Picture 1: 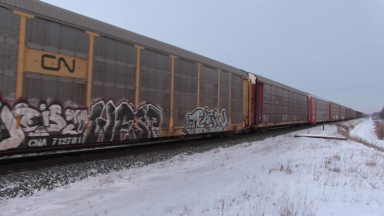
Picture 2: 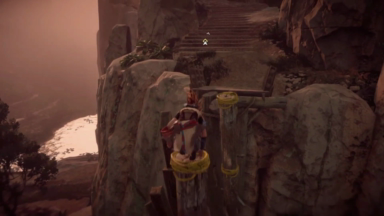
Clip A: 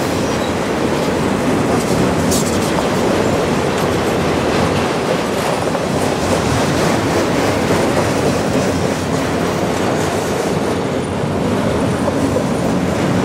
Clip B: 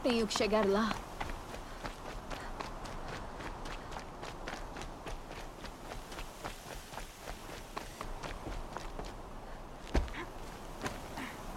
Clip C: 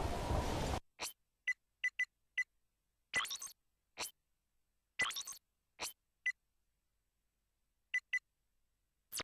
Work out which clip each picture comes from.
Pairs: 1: A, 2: B